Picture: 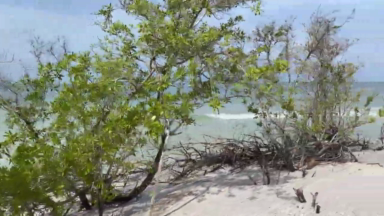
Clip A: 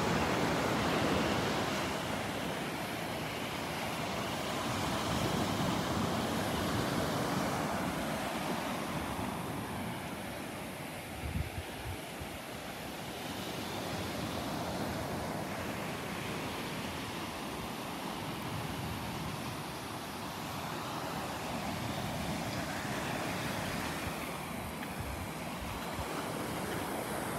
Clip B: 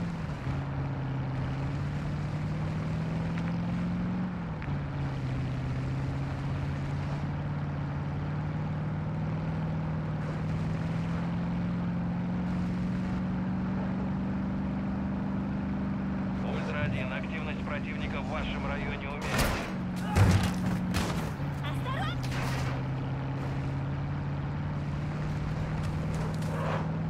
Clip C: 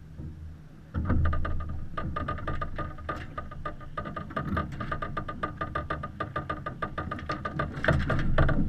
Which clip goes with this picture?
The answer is A